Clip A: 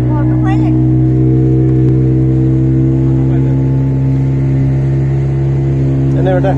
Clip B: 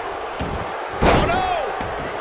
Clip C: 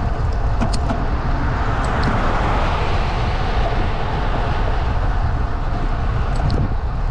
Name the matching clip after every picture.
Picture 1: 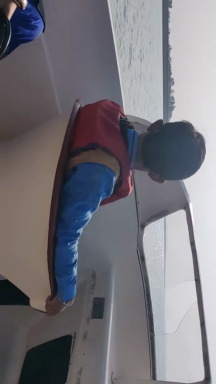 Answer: A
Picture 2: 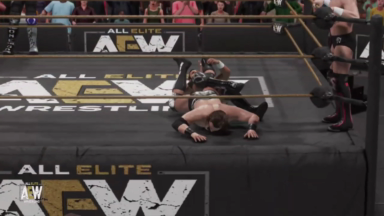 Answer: B